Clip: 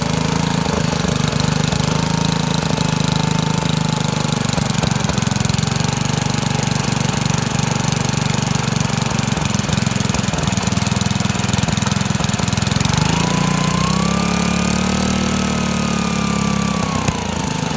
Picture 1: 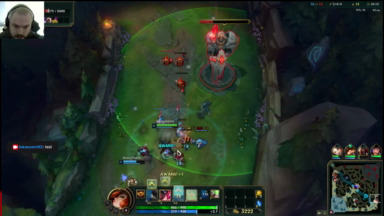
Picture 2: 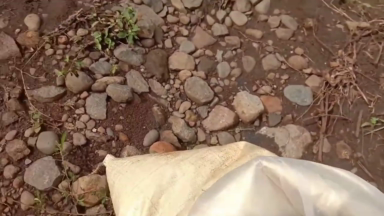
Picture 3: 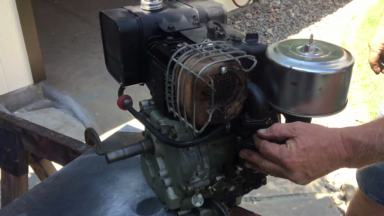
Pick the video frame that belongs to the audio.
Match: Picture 3